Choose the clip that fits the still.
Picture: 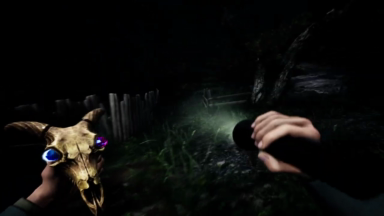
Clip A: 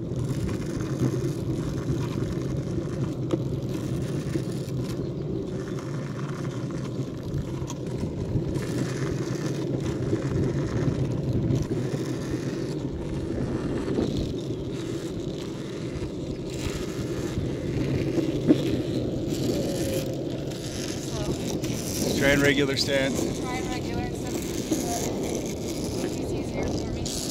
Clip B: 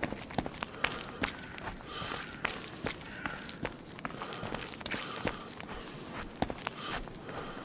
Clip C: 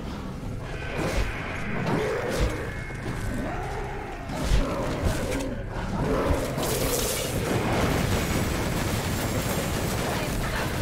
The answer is B